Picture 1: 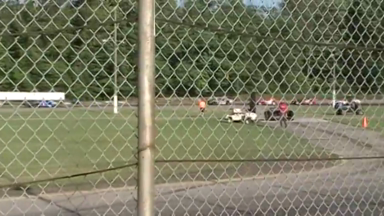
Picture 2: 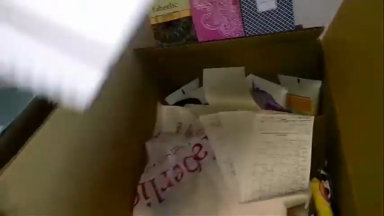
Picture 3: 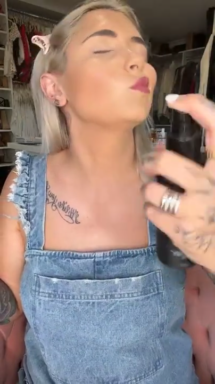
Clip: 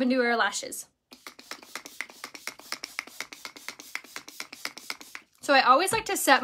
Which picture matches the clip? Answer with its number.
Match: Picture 3